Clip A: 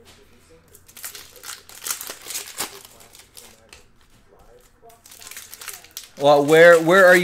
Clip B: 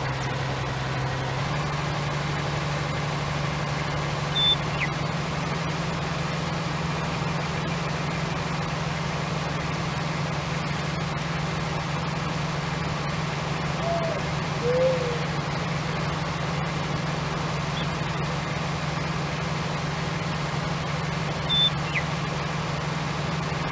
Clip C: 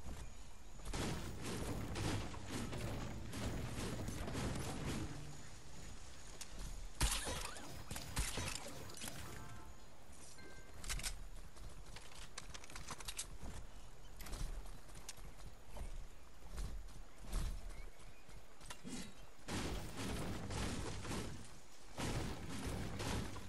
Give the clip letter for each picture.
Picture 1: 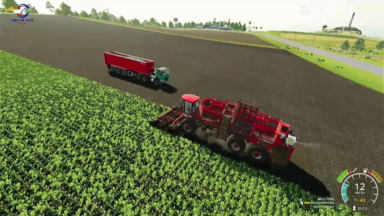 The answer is B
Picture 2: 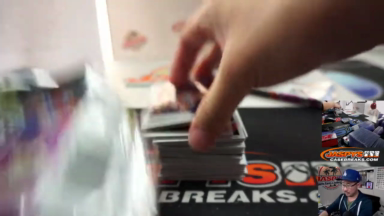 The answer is A